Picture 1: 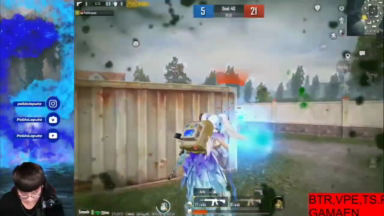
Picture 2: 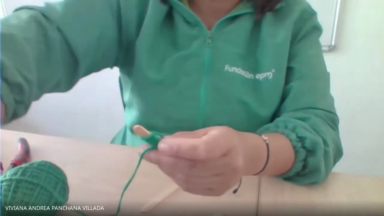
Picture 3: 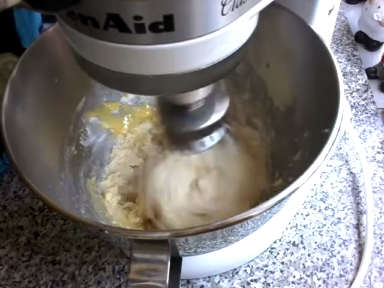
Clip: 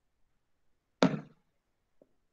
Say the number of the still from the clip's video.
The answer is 2